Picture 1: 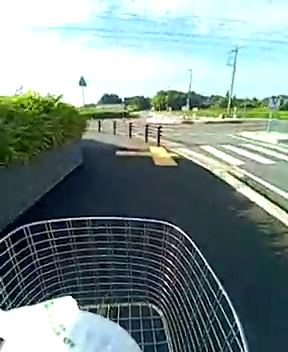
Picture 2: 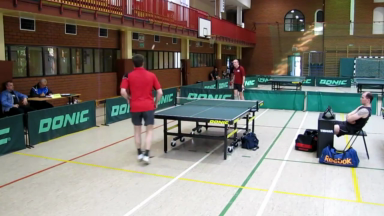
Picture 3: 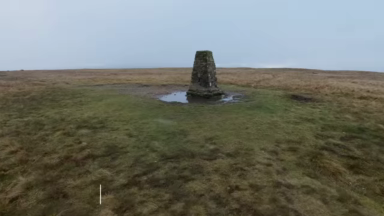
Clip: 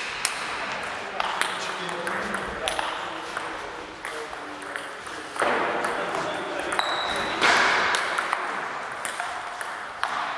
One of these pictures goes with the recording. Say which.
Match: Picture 2